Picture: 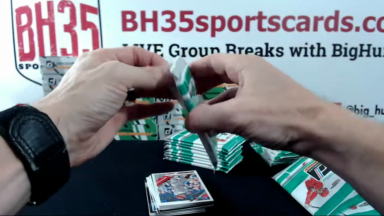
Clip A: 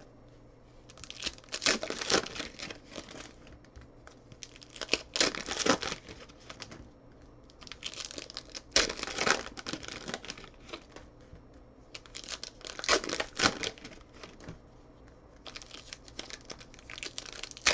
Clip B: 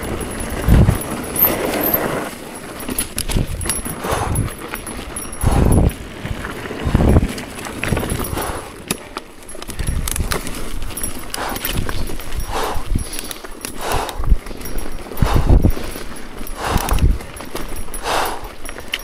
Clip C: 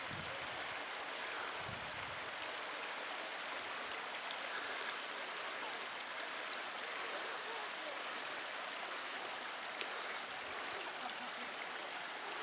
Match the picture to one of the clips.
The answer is A